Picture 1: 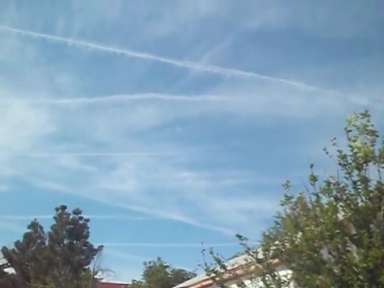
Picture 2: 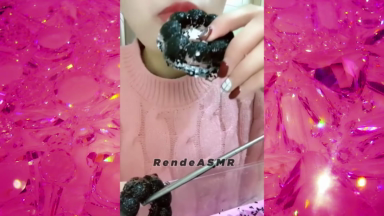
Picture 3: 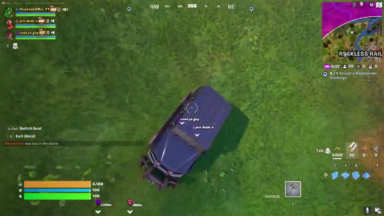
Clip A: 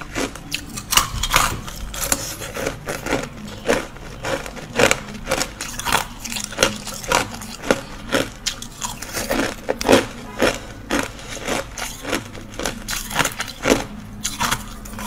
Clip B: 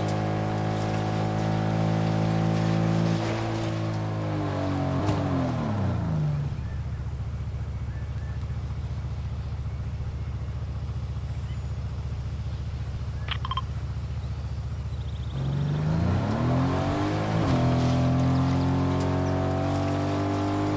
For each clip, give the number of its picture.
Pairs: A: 2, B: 3